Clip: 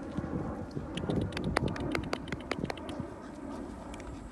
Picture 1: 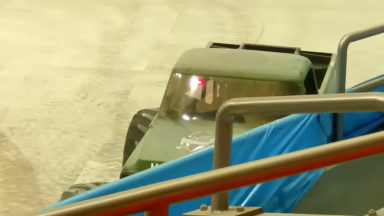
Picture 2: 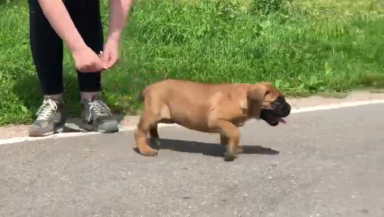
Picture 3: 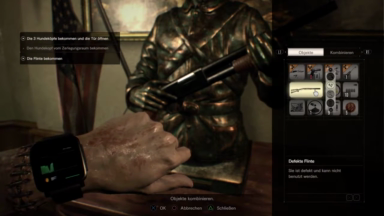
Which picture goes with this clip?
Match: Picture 2